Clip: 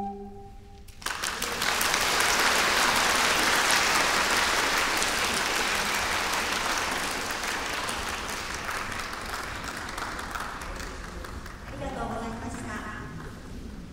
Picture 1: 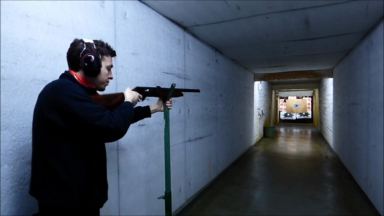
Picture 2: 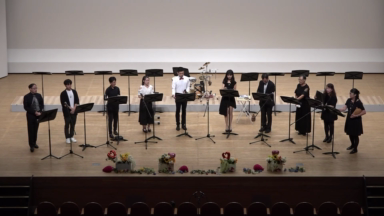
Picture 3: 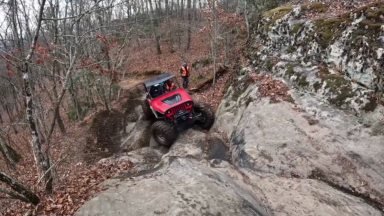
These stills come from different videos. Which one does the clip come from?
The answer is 2